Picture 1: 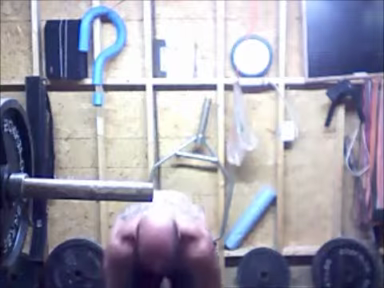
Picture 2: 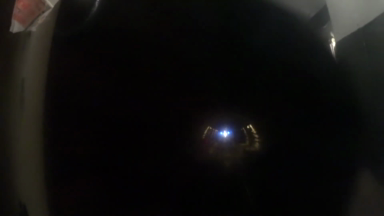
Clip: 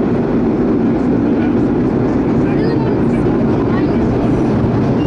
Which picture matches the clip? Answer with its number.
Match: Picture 2